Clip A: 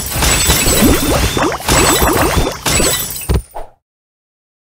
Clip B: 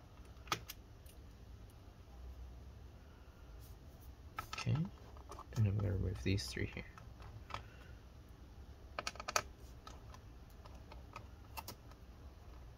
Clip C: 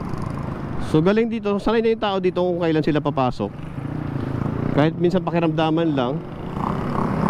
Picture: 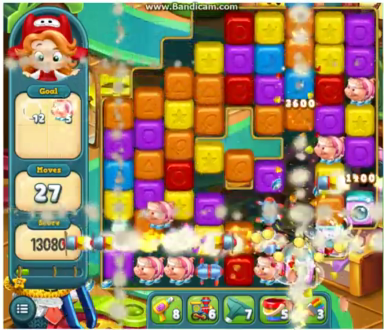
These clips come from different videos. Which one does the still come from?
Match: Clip A